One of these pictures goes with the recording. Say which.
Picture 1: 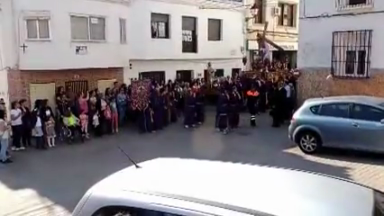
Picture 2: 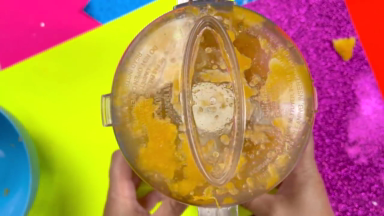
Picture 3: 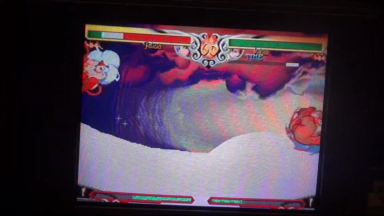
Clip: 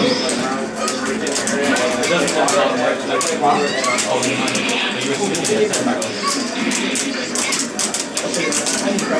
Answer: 3